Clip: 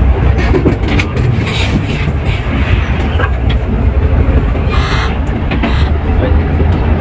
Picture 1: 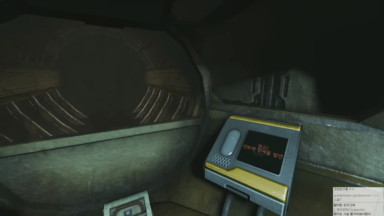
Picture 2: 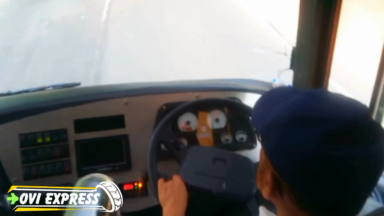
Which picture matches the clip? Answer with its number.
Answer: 2